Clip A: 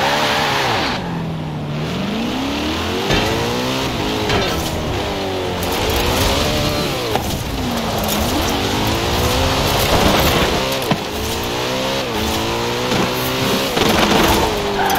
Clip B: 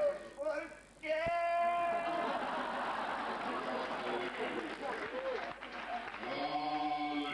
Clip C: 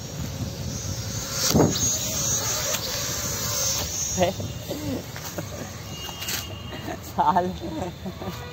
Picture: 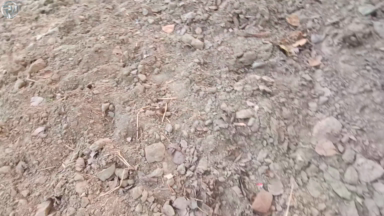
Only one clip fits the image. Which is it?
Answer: C